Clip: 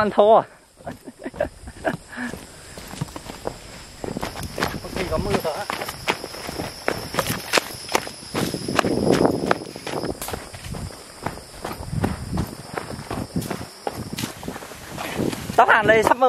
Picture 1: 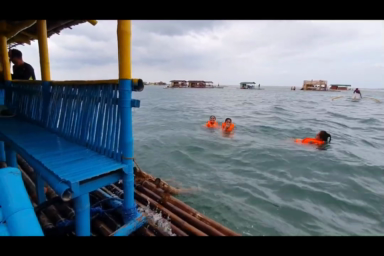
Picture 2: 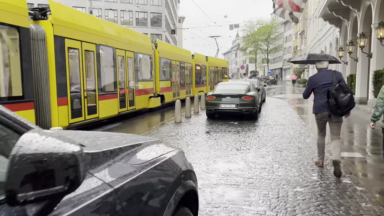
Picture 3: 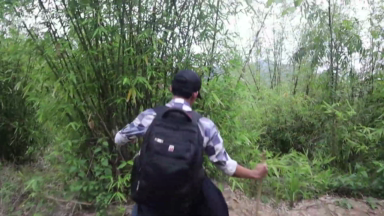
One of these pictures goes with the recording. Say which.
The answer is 3